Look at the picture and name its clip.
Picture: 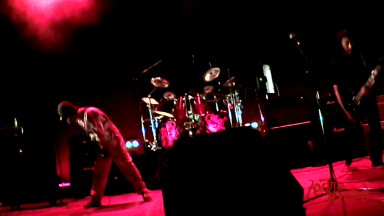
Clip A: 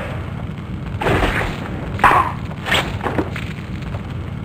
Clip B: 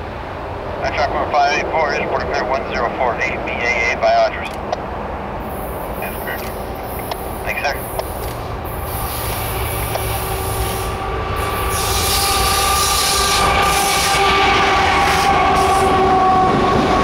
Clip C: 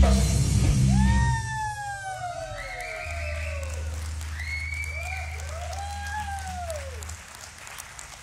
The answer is C